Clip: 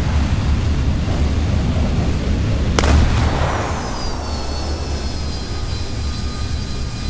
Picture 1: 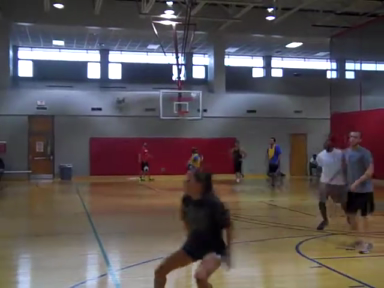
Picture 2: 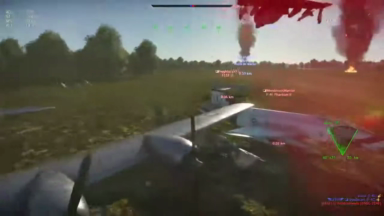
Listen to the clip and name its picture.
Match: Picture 2